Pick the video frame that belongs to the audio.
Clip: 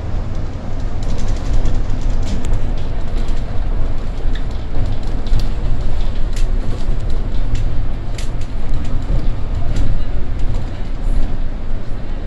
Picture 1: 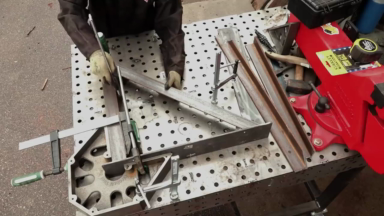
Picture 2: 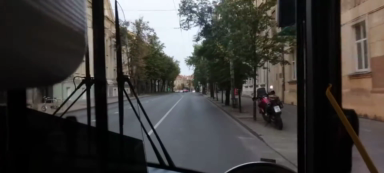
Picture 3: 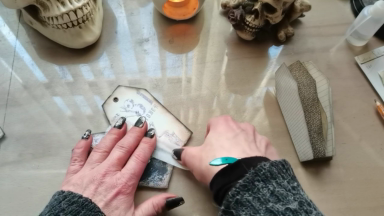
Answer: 2